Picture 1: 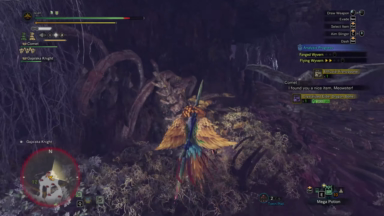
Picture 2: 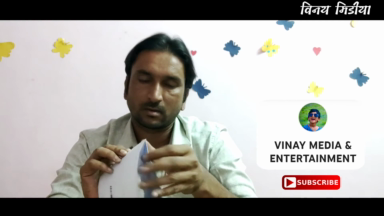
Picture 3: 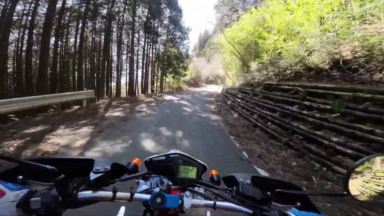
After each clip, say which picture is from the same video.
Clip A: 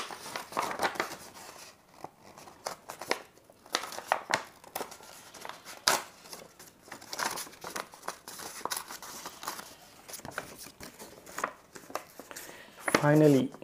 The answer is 2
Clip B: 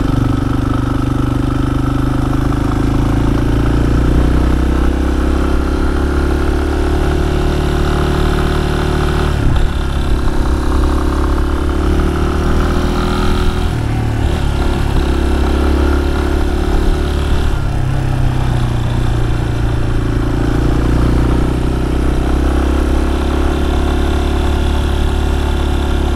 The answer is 3